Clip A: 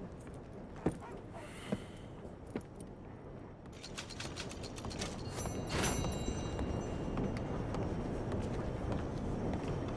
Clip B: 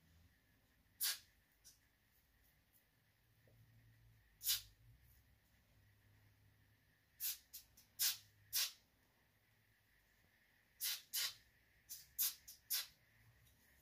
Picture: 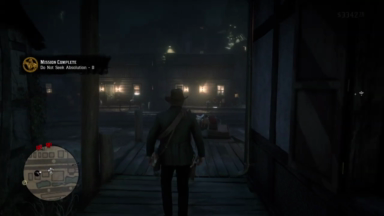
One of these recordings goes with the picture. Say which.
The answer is A